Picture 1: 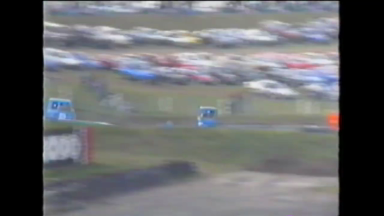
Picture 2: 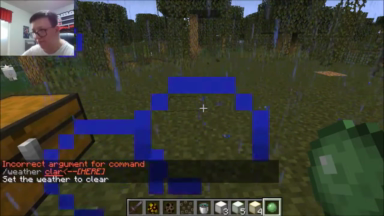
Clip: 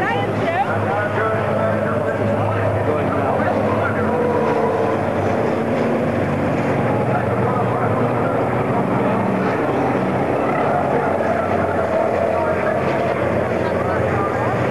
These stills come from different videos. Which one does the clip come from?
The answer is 1